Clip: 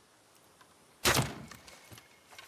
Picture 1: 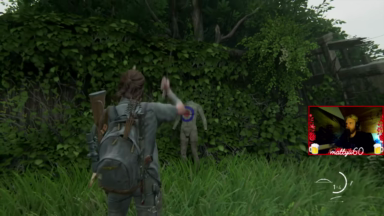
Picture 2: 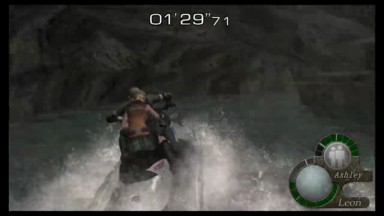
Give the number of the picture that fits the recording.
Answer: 1